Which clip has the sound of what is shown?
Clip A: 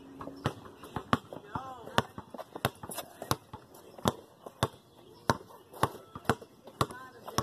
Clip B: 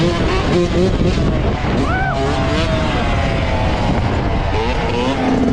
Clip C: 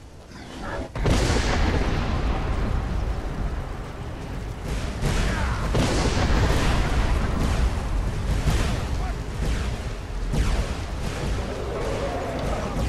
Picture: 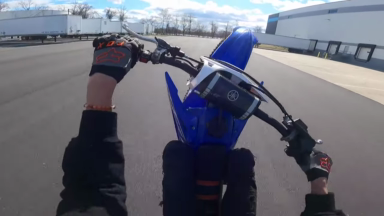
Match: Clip B